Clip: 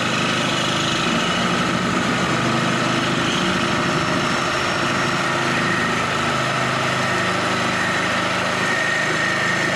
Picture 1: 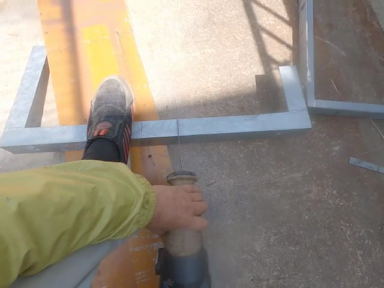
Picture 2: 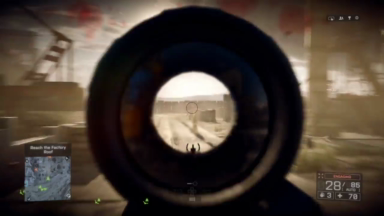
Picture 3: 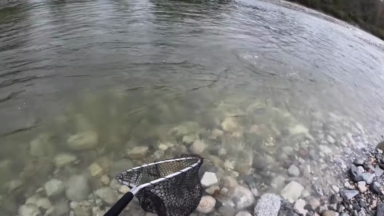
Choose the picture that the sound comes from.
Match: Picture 1